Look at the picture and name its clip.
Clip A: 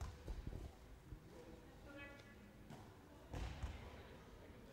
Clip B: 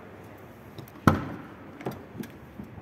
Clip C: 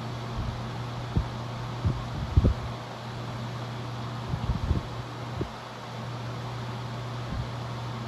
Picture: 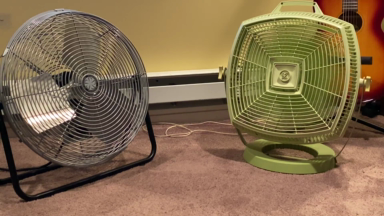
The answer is C